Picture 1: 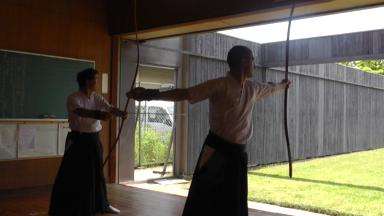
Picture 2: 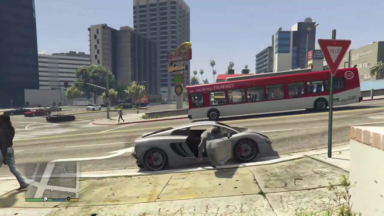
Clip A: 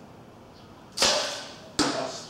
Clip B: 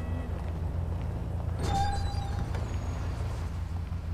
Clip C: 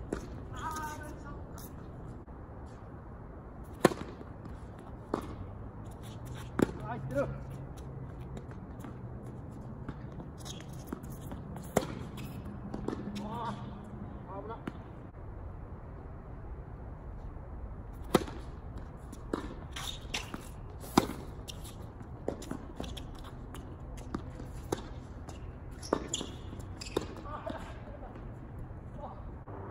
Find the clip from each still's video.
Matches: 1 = A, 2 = B